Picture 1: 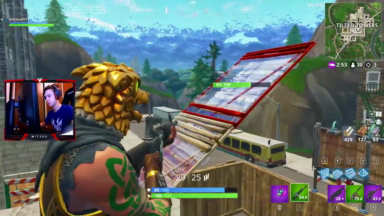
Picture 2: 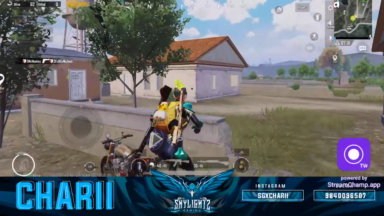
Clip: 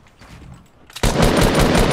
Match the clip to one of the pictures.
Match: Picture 1